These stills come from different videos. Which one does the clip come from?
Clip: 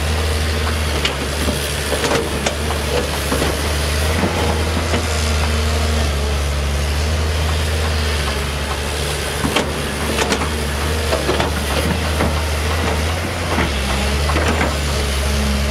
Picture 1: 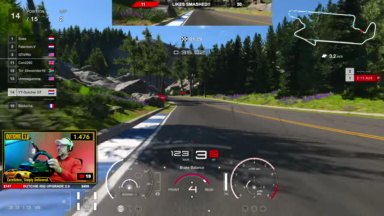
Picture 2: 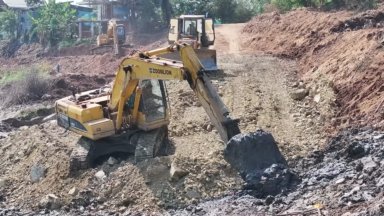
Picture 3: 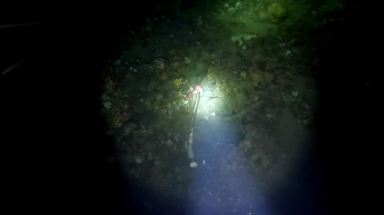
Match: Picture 2